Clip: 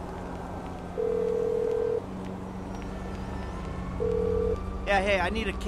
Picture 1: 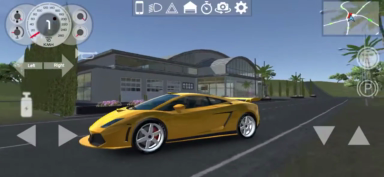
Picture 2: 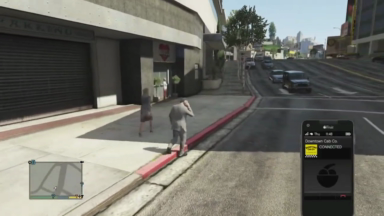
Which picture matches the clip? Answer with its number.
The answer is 2